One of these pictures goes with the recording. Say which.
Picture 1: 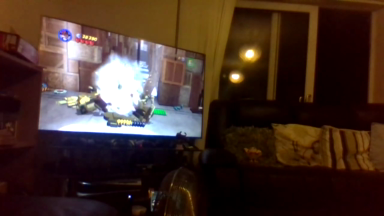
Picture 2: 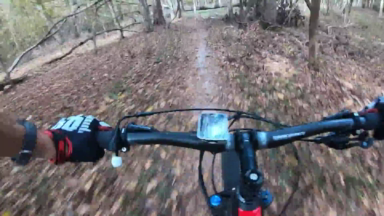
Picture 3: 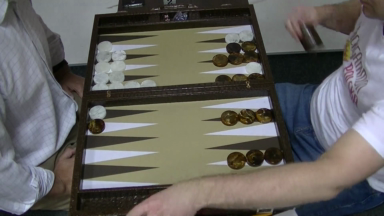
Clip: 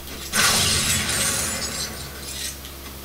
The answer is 1